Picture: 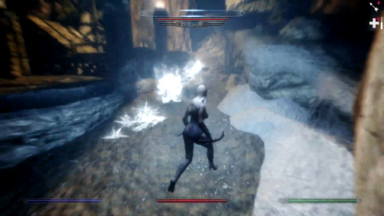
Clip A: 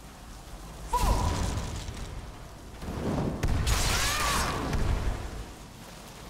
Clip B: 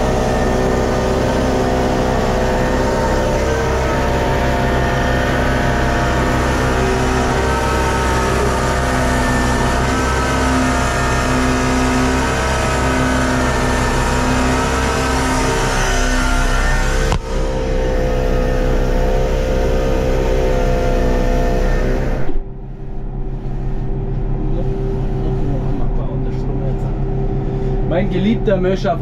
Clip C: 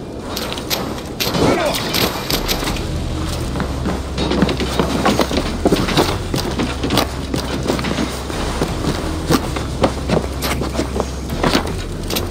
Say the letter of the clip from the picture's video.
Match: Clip A